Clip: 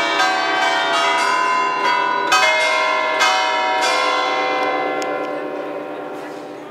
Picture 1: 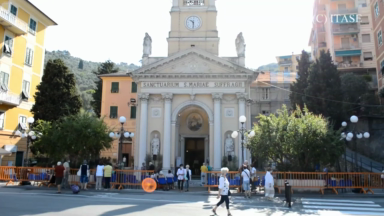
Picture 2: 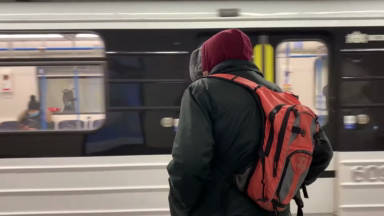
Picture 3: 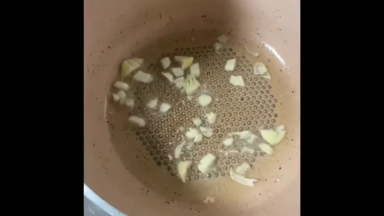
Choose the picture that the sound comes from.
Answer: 1